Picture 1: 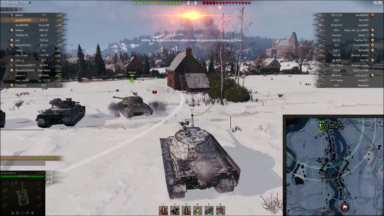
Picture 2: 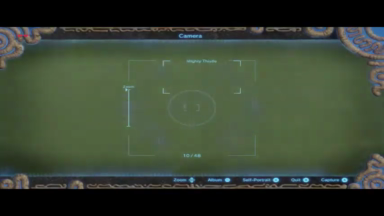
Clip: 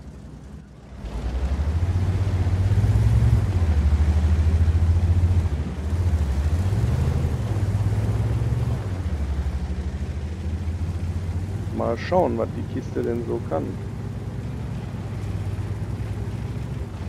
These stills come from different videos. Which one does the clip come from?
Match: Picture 1